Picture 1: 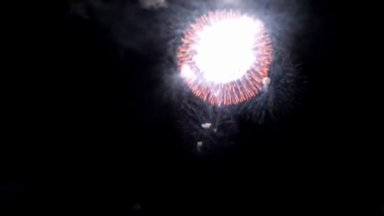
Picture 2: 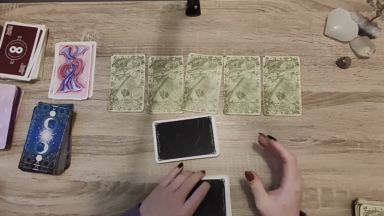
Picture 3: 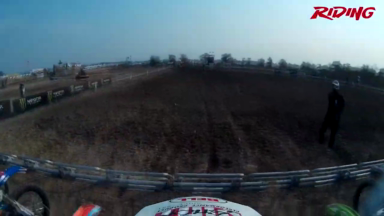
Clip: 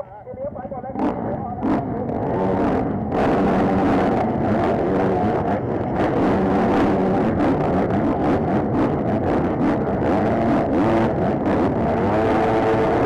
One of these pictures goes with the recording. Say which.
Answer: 3